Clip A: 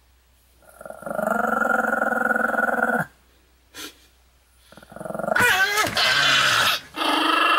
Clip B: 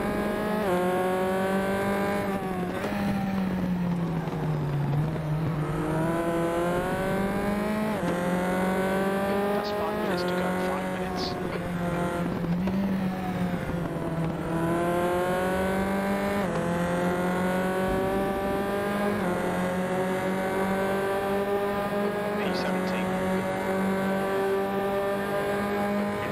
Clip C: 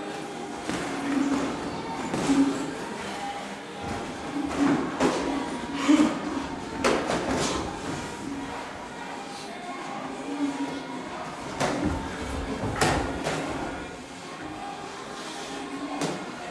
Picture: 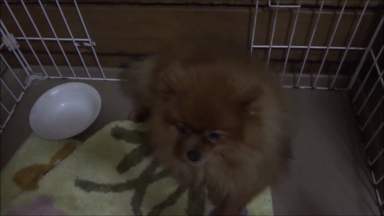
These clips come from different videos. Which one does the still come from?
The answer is A